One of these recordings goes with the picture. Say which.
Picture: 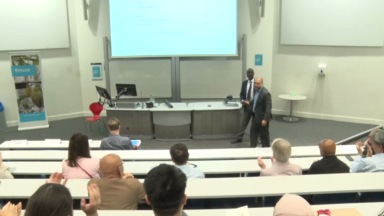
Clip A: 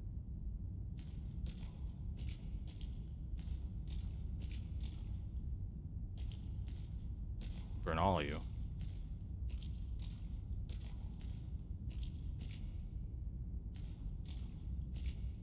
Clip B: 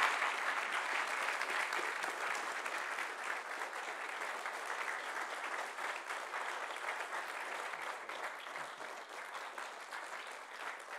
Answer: B